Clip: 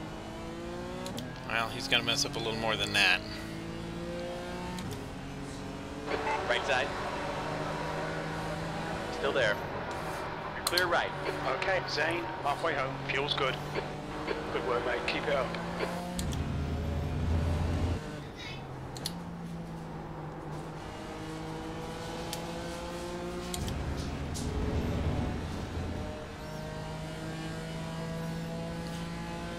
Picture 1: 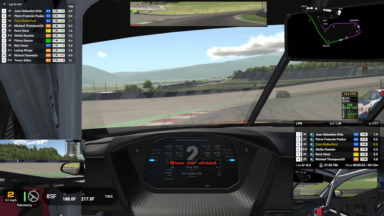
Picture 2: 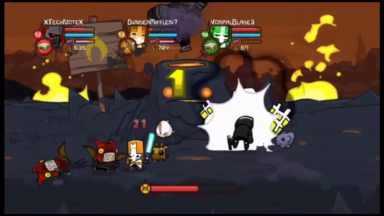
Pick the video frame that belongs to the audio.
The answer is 1